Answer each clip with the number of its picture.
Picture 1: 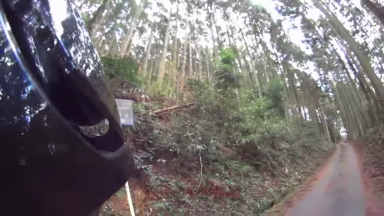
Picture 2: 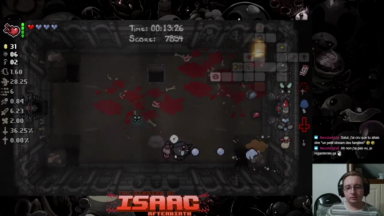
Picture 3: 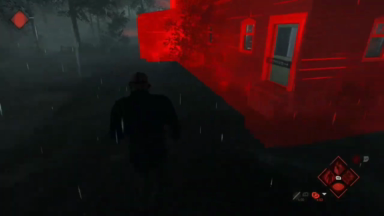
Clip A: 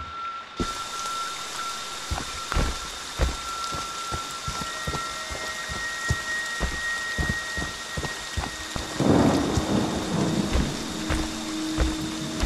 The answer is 3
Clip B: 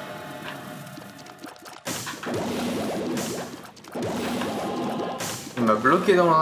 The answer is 2